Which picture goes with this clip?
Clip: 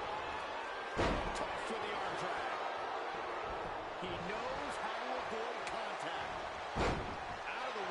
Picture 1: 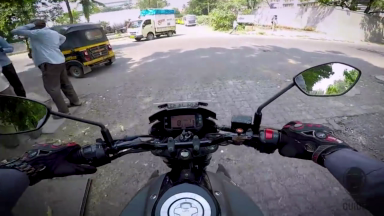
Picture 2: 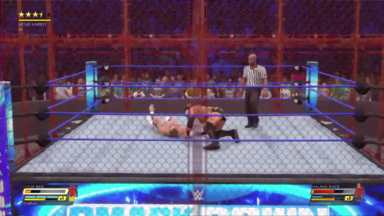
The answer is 2